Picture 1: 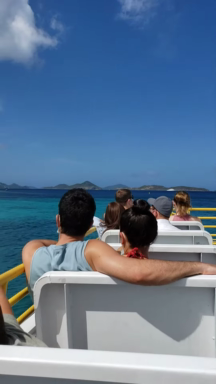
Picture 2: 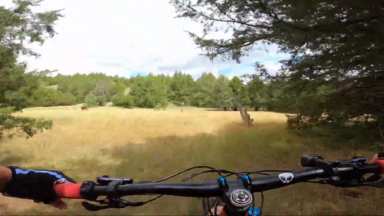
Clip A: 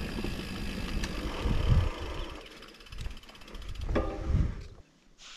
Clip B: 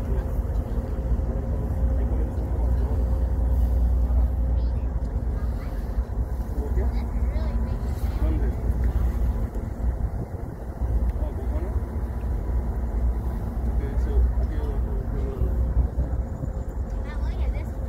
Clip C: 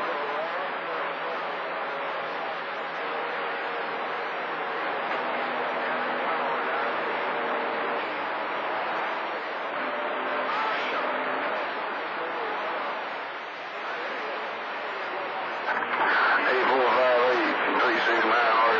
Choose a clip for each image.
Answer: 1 B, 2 A